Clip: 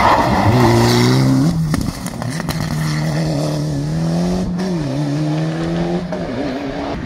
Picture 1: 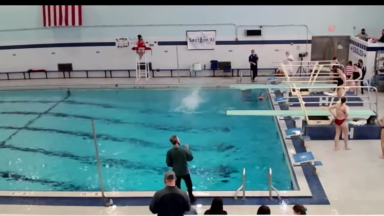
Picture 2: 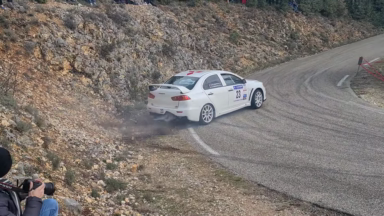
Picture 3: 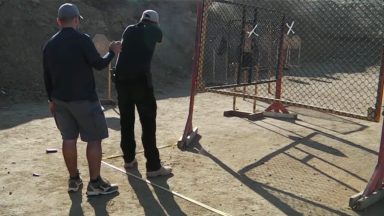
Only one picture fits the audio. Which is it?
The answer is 2